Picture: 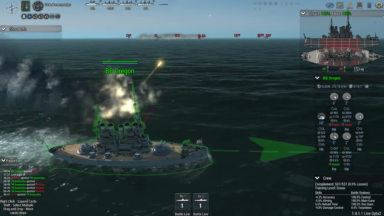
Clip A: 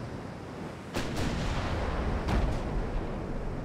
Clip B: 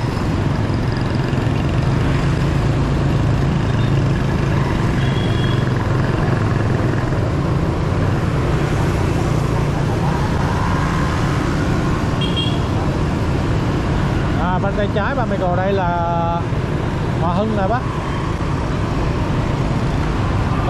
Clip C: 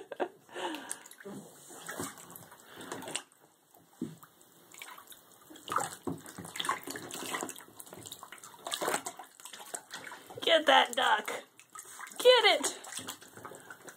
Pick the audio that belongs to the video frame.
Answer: A